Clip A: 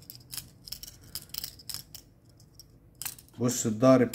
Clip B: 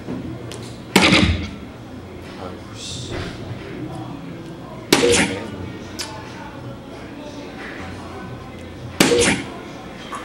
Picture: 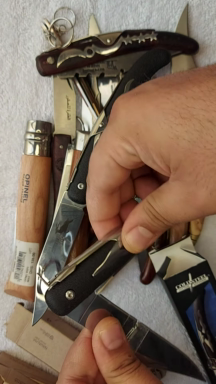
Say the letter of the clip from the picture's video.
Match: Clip A